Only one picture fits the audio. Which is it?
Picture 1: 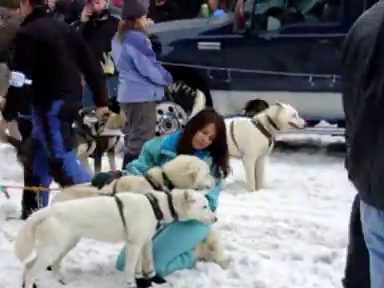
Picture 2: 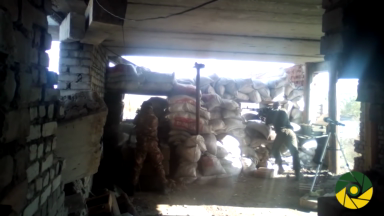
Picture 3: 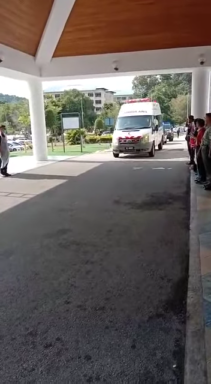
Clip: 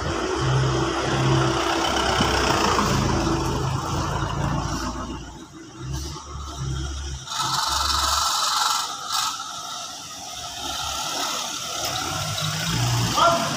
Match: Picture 3